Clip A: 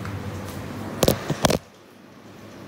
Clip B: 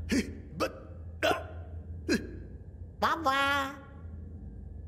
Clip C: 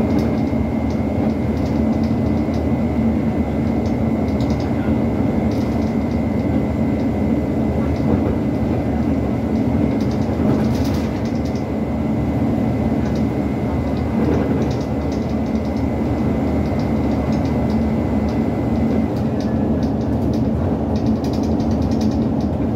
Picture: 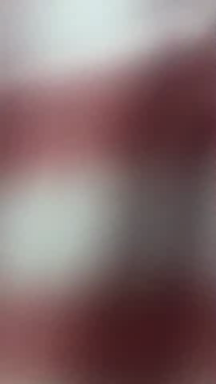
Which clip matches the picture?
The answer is A